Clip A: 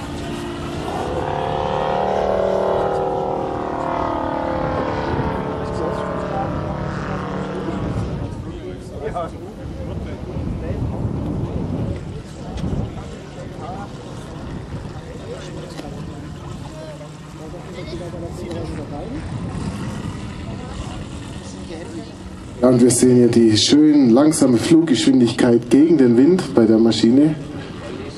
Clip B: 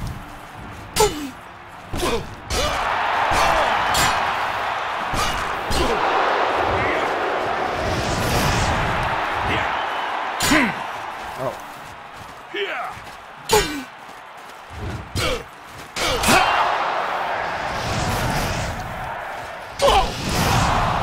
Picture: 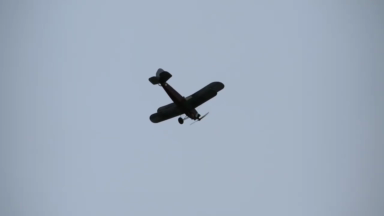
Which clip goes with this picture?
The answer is A